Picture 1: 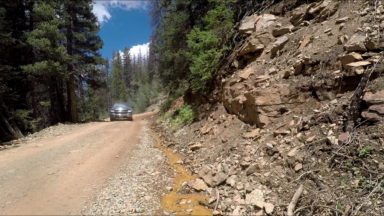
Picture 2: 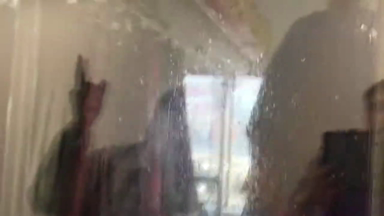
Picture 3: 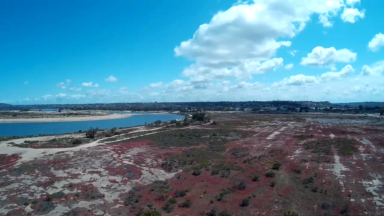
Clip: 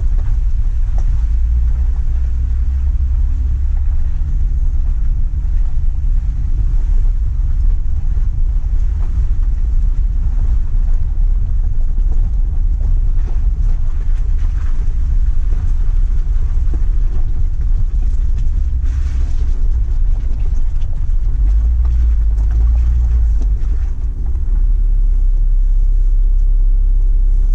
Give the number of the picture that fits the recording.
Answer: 1